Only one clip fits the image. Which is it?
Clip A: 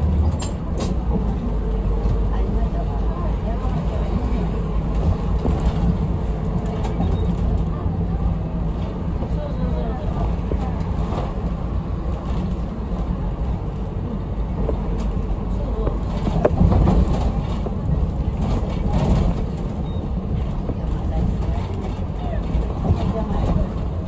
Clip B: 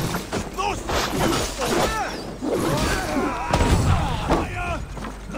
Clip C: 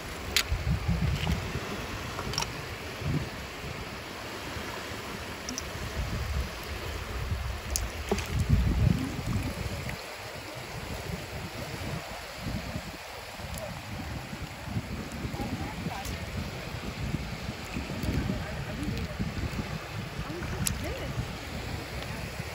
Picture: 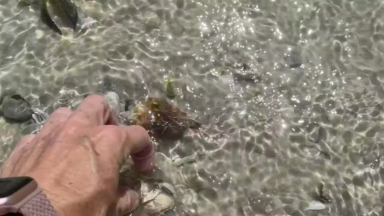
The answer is C